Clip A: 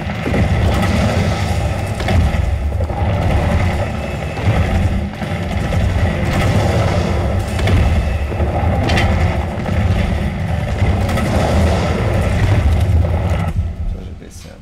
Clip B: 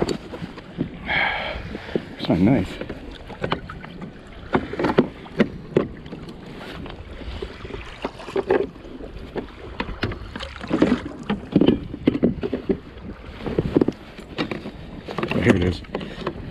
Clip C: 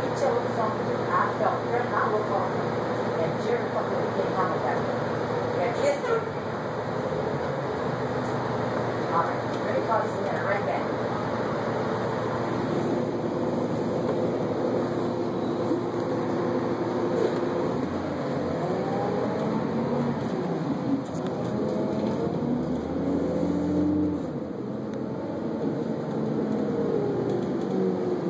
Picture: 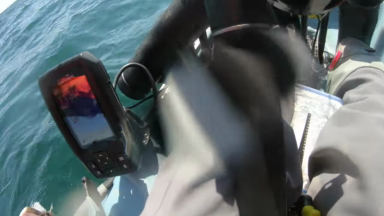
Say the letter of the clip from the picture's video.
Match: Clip B